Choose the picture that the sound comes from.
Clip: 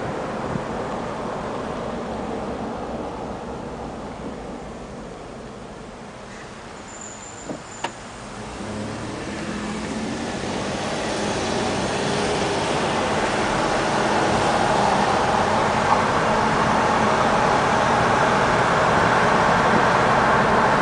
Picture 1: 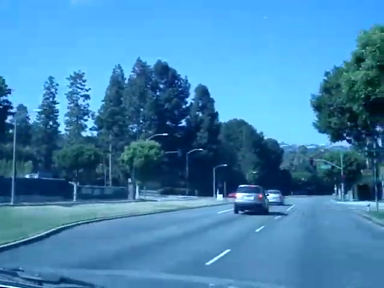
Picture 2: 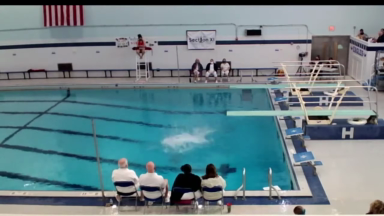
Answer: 1